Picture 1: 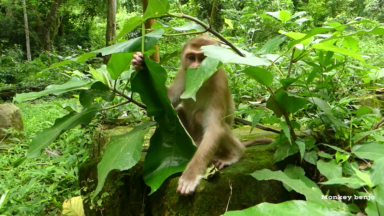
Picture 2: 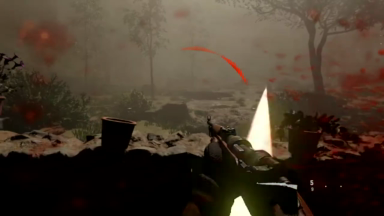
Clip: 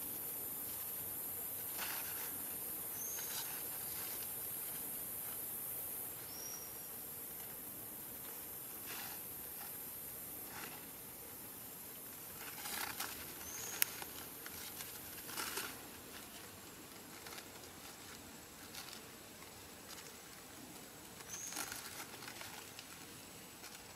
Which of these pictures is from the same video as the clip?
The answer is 1